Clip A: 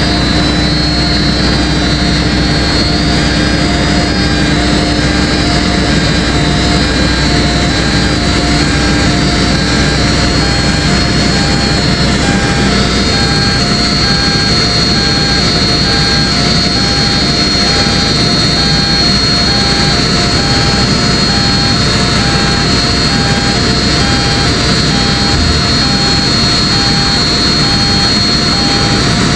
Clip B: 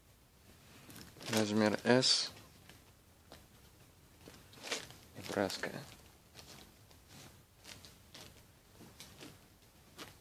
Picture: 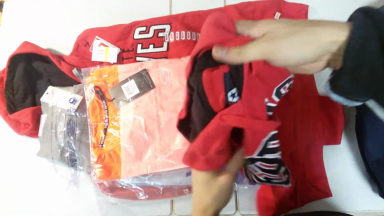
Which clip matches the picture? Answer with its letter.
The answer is B